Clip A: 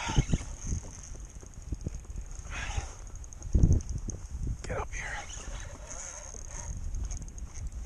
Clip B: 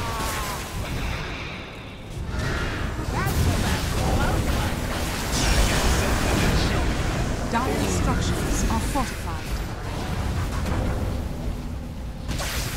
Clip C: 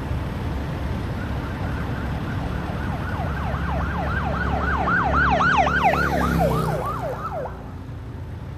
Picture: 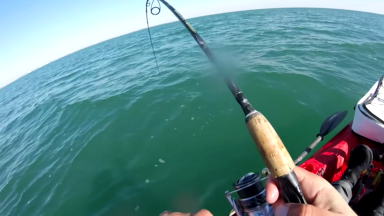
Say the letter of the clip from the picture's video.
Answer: A